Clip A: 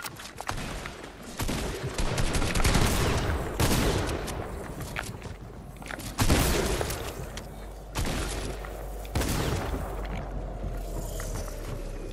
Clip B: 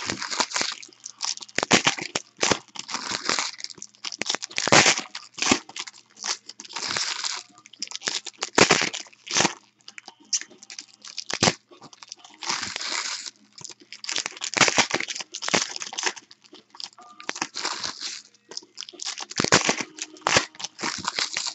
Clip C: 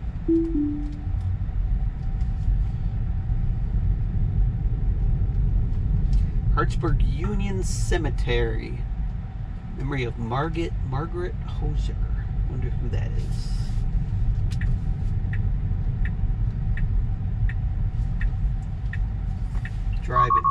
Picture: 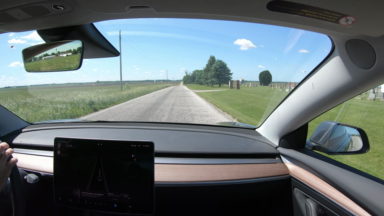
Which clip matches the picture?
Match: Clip C